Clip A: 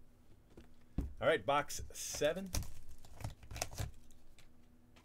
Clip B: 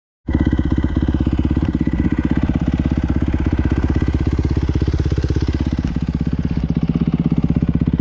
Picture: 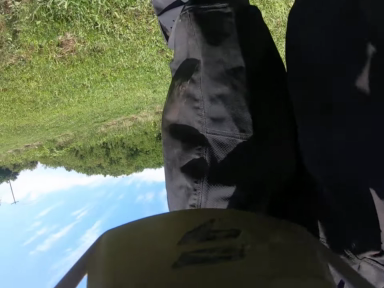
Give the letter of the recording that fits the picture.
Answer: B